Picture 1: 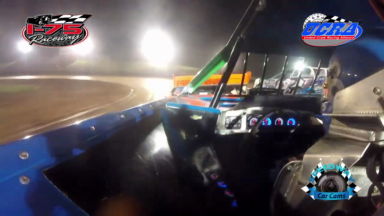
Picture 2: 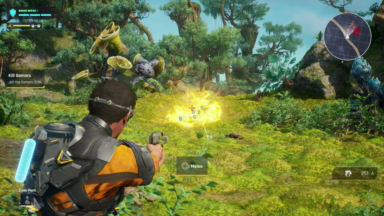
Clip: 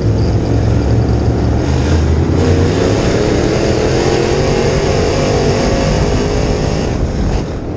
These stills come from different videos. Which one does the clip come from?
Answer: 1